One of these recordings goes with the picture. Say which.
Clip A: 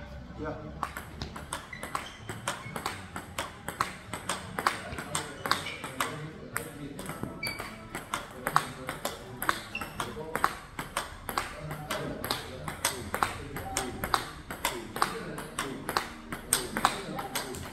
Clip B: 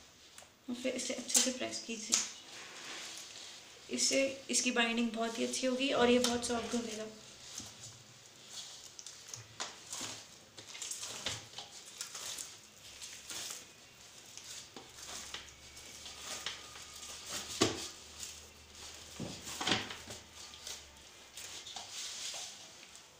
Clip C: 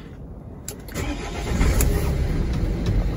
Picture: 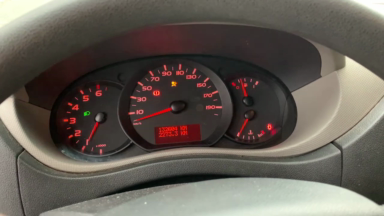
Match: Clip C